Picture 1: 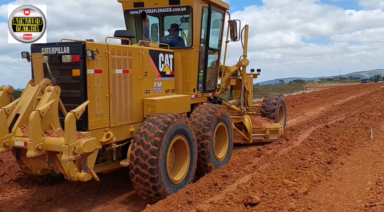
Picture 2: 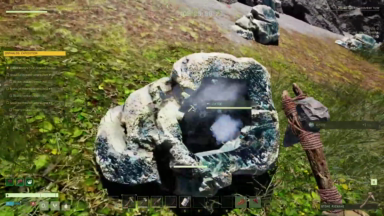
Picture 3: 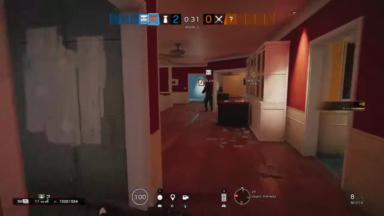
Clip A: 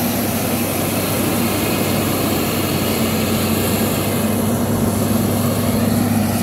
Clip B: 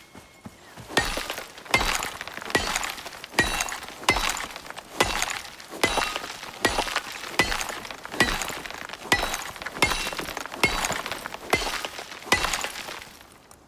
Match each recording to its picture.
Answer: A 1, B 2